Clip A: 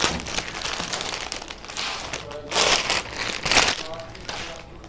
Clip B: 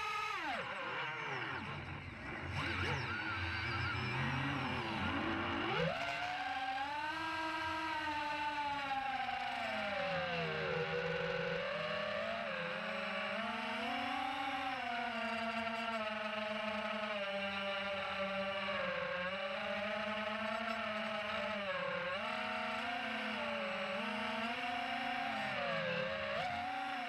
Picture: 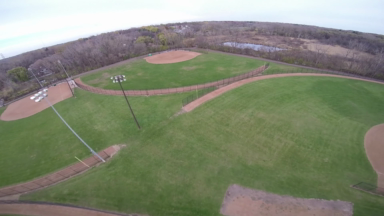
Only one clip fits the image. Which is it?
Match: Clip B